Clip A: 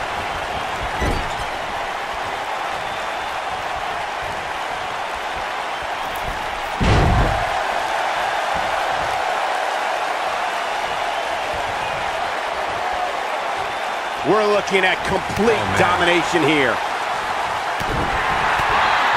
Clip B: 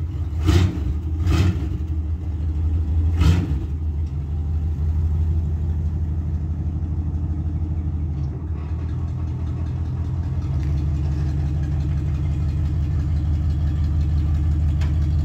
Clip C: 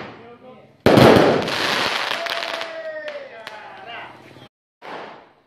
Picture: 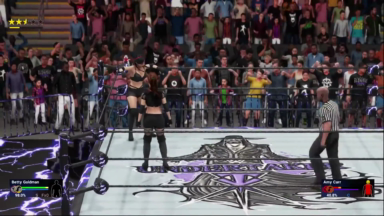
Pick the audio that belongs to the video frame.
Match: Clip A